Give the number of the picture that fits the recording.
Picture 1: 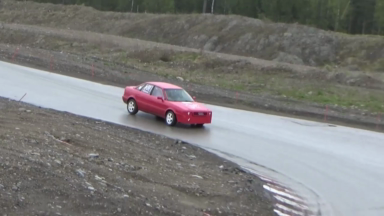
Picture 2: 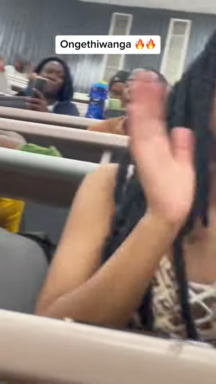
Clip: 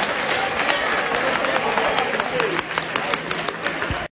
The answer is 2